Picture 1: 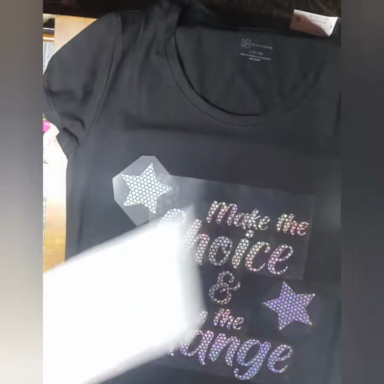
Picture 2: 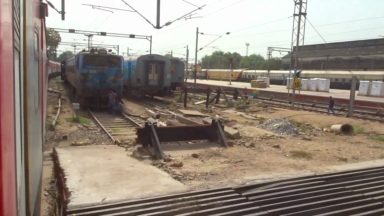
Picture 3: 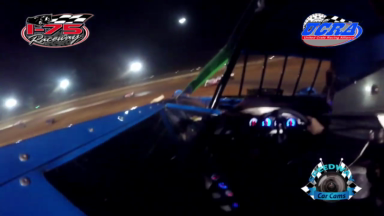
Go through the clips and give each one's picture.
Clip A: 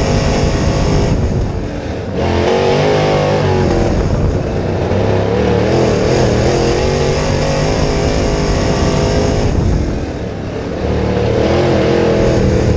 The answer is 3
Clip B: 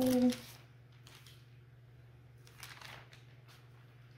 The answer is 1